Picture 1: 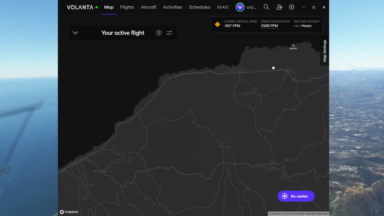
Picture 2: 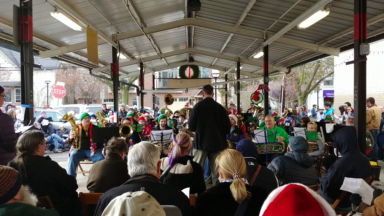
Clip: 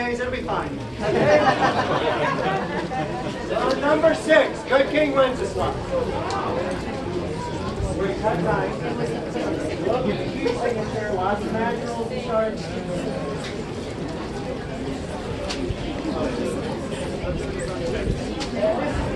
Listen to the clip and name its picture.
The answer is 2